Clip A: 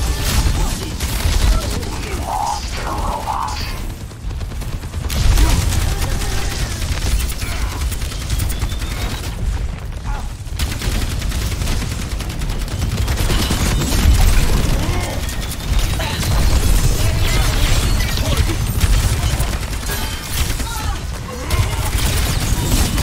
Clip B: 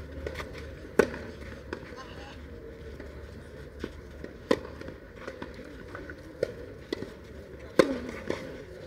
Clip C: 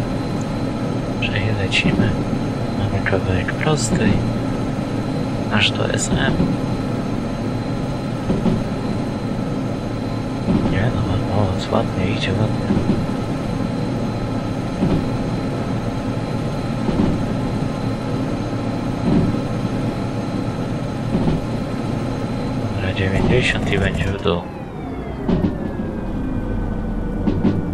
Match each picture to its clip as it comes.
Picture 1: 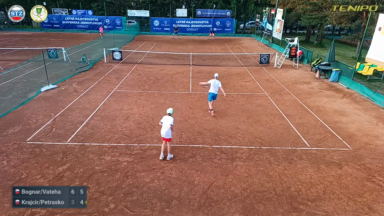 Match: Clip B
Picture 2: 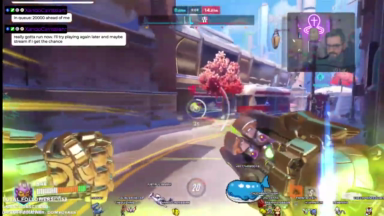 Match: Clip A